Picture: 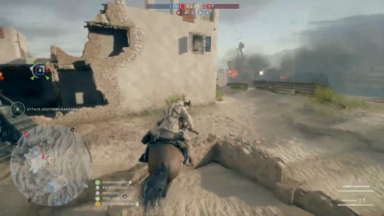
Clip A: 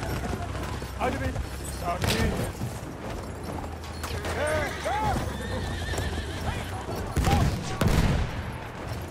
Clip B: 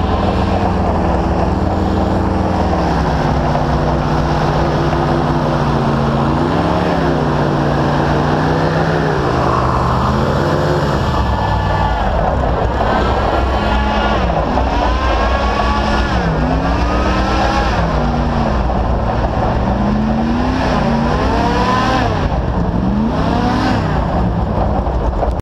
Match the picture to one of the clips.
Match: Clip A